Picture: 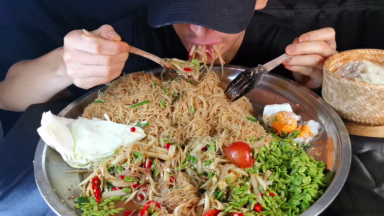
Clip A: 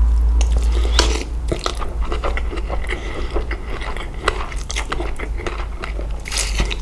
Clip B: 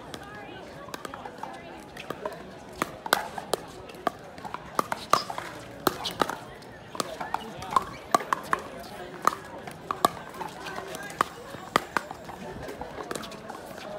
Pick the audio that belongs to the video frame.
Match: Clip A